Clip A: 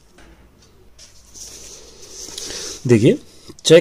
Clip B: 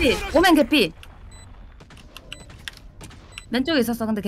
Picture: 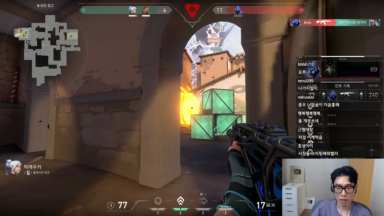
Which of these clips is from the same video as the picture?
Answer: B